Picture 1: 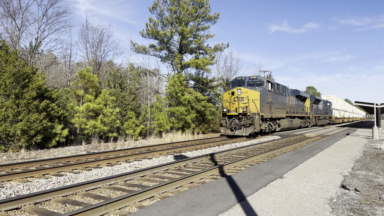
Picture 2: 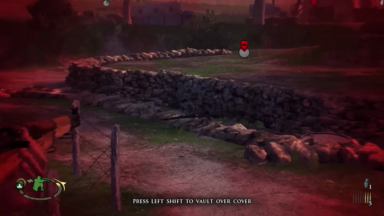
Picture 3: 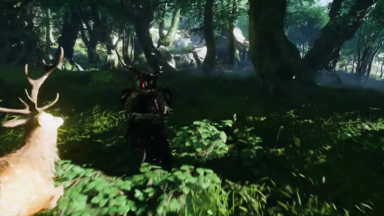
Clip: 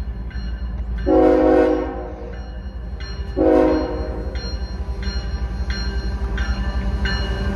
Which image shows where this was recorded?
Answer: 1